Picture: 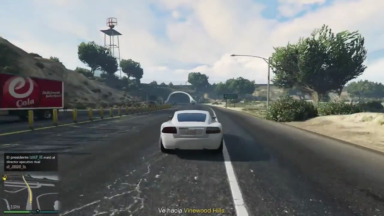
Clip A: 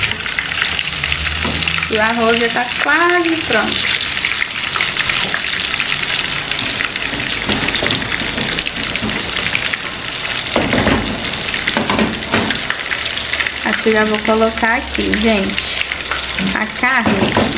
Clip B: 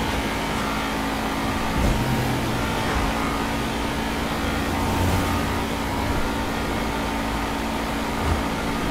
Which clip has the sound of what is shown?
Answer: B